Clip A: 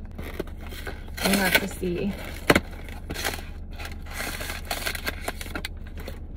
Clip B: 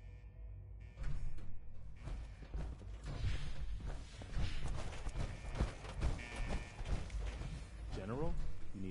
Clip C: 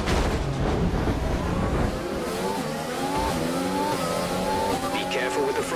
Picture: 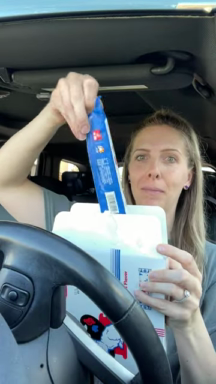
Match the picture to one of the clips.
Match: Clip A